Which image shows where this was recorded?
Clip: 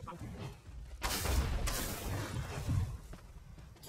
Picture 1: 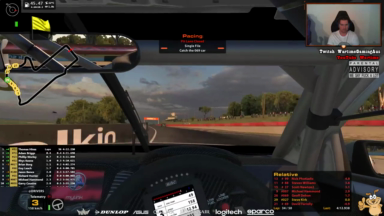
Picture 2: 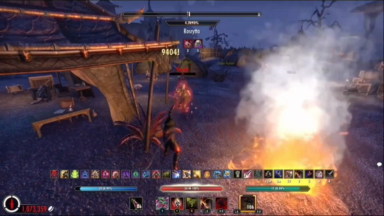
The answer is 2